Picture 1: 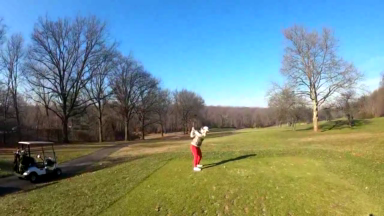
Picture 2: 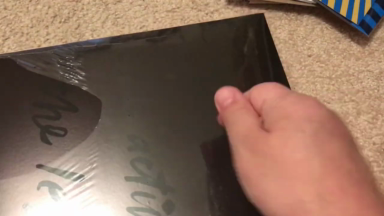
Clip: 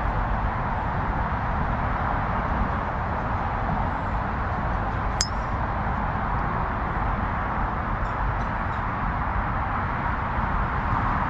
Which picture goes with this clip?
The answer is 1